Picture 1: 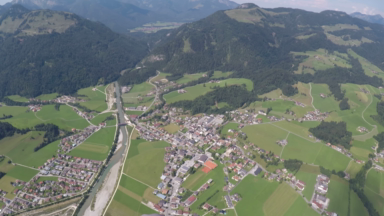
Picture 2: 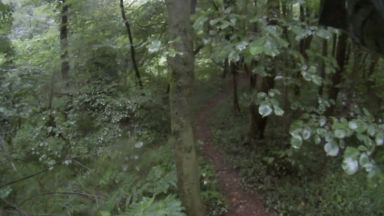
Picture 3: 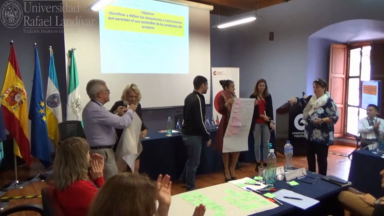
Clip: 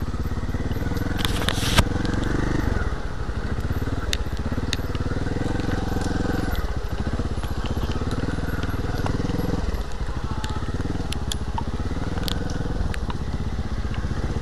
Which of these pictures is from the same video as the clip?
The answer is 2